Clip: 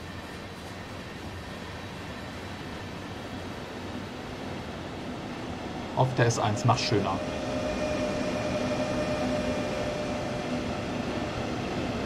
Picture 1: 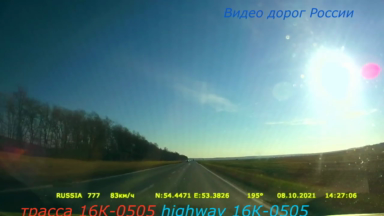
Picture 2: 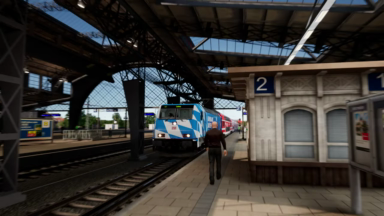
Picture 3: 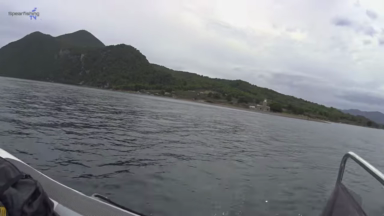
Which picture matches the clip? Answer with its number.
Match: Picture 2